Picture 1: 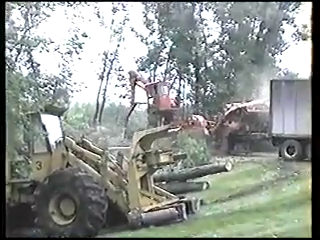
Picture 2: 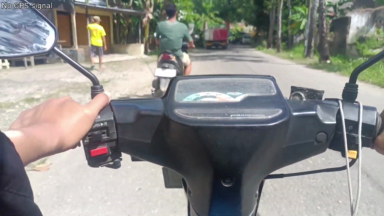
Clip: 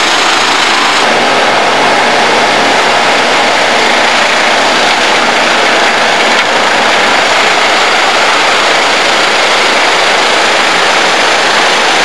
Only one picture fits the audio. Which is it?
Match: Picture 1